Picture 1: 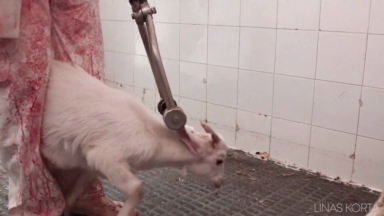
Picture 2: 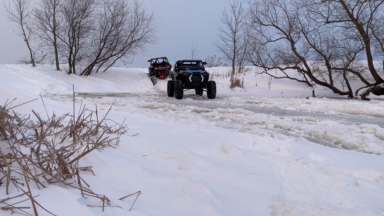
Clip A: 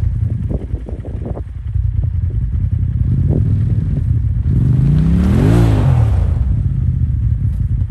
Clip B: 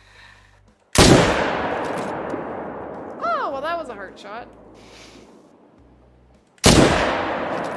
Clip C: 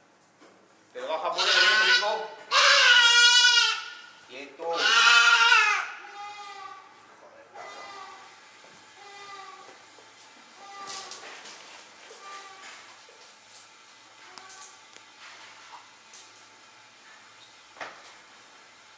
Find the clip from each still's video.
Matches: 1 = C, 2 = A